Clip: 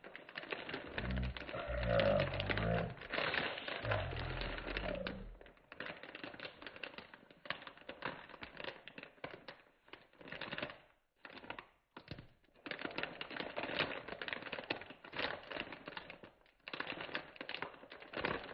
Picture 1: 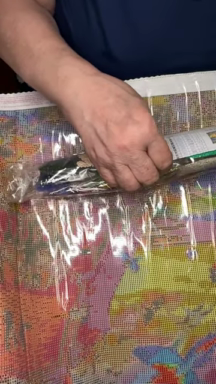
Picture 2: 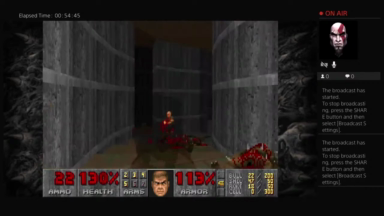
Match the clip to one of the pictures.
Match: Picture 1